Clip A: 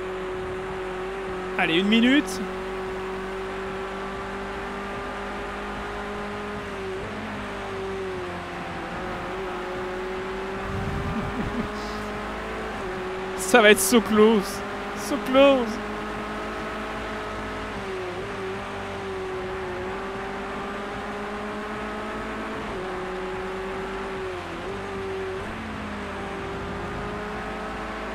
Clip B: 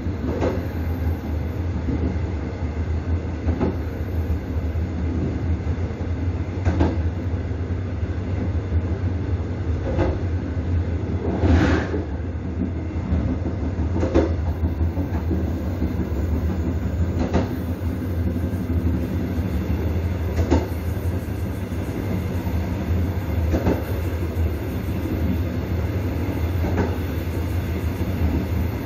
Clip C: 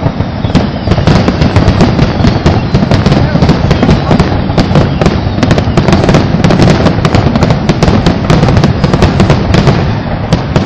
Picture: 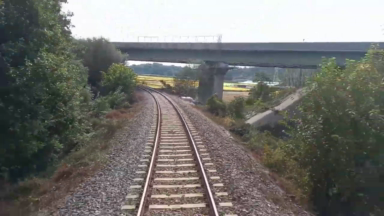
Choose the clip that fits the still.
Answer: B